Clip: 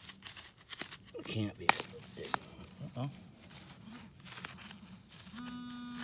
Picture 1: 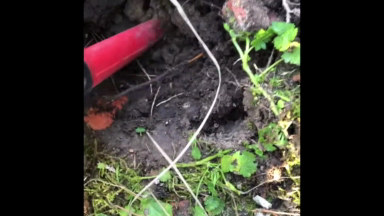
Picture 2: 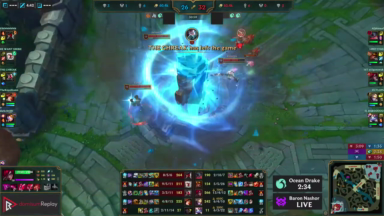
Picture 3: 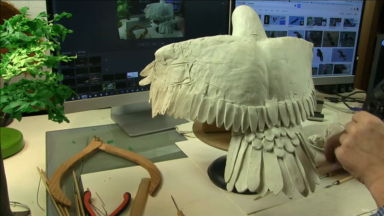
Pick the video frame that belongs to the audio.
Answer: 1